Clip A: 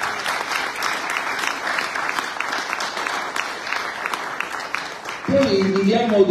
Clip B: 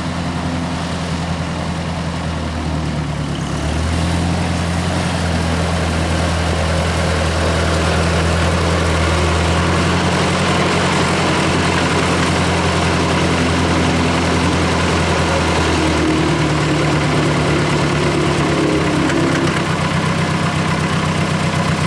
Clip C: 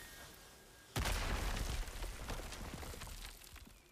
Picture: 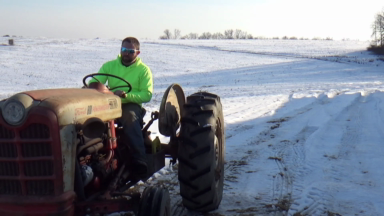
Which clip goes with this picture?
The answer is B